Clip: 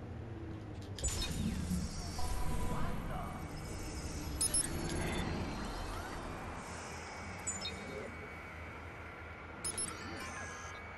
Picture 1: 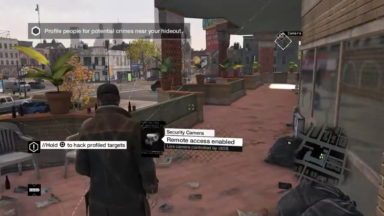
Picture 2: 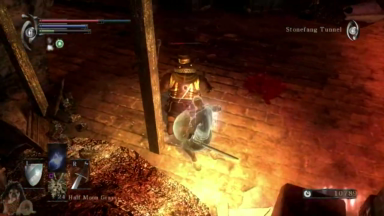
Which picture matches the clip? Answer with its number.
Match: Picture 1